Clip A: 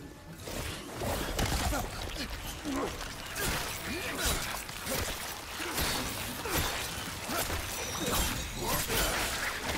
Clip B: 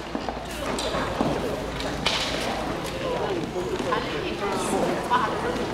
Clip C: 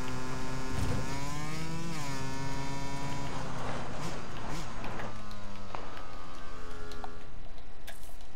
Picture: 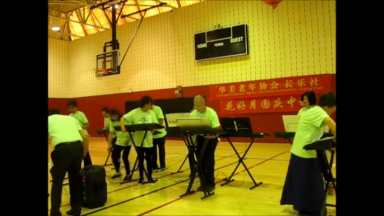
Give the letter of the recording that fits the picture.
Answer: B